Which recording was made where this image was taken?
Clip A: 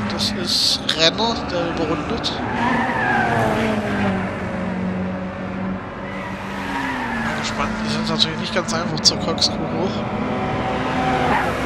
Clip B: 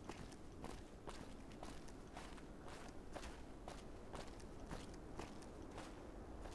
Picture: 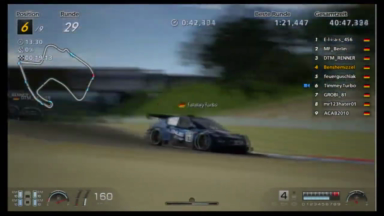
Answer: A